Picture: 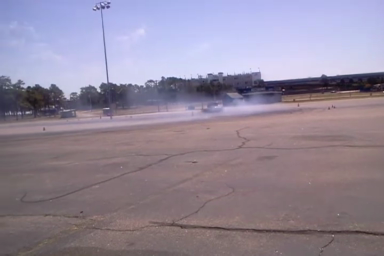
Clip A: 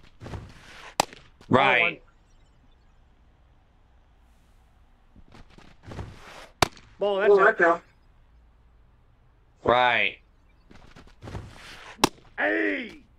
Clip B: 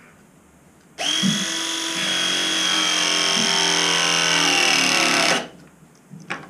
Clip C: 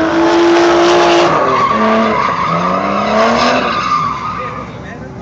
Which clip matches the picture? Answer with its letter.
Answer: C